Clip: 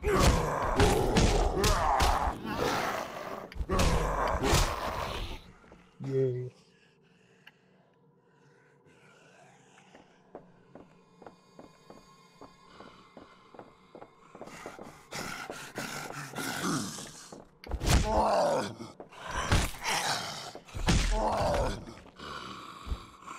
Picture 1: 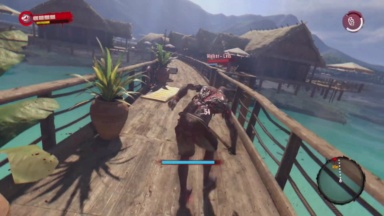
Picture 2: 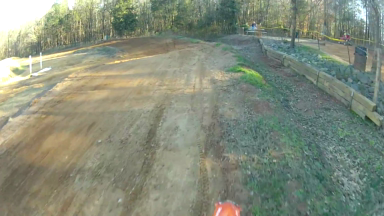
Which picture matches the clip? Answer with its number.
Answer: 1